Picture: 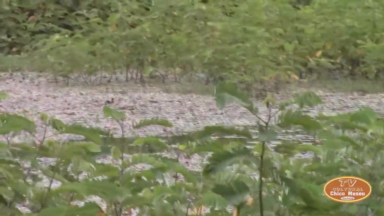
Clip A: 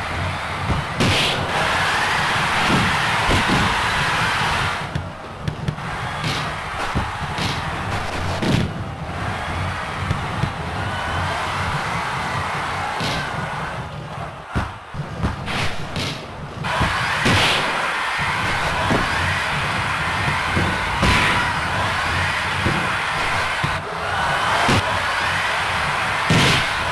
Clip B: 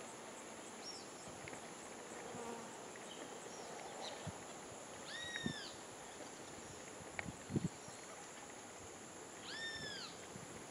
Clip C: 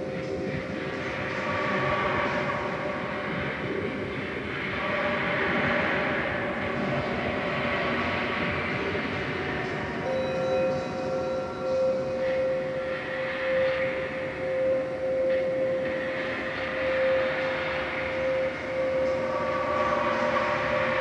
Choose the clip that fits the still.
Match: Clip B